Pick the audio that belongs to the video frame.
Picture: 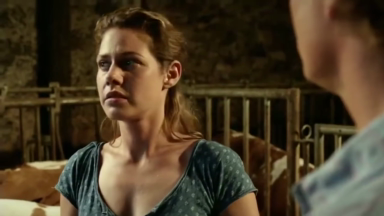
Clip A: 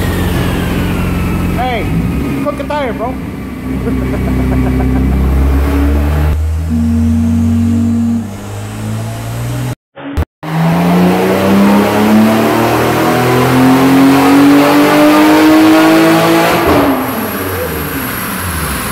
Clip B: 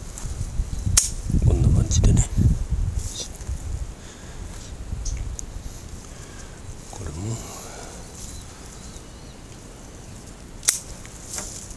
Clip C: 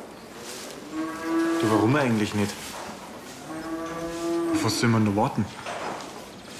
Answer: C